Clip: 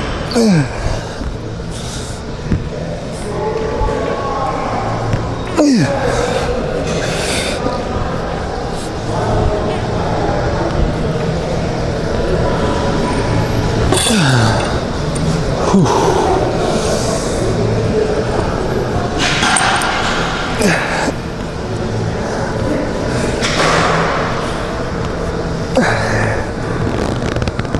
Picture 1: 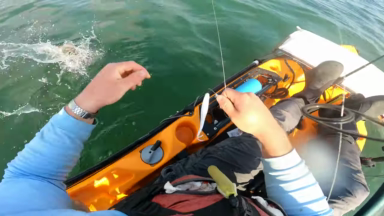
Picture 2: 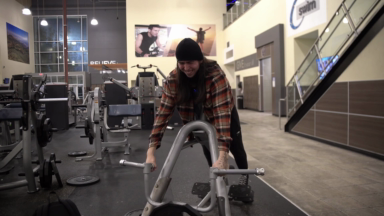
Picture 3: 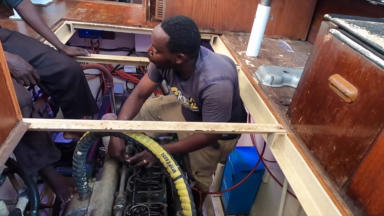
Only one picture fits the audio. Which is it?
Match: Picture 2